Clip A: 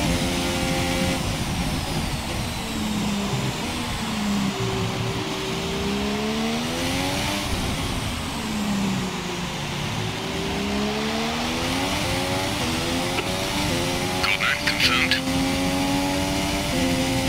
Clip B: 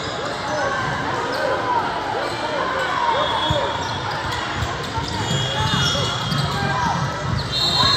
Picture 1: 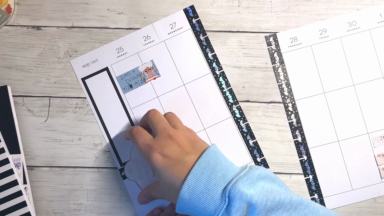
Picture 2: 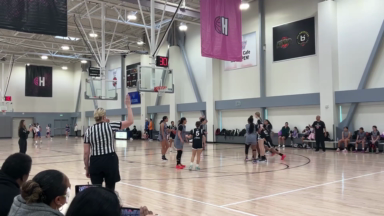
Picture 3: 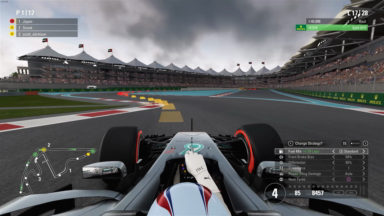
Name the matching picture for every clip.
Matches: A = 3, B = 2